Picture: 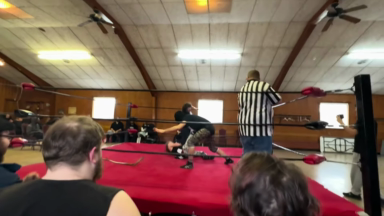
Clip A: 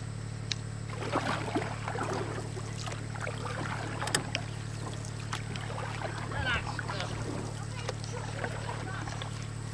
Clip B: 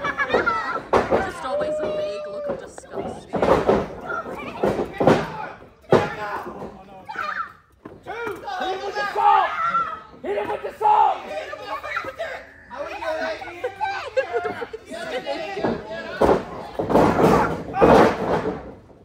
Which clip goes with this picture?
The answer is B